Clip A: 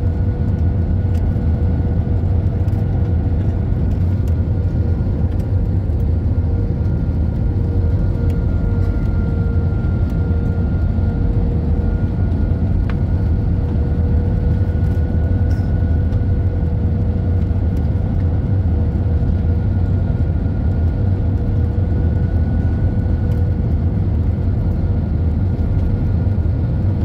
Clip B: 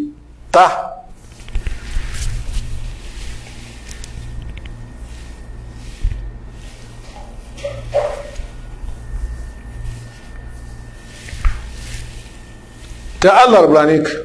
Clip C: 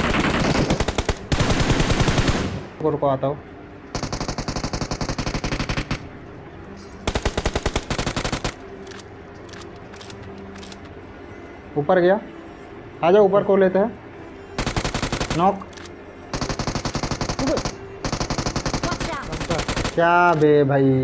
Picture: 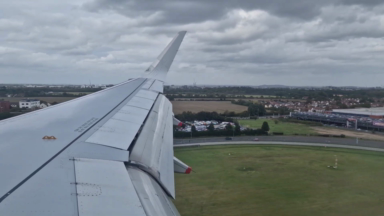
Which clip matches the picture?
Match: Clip A